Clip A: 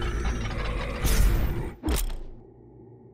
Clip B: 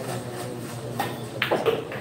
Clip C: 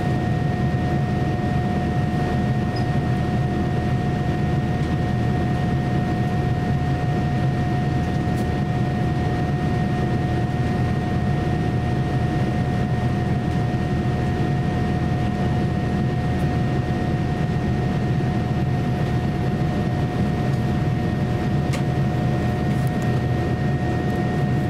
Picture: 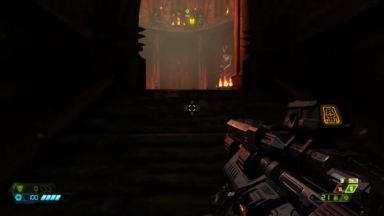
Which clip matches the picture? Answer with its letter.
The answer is A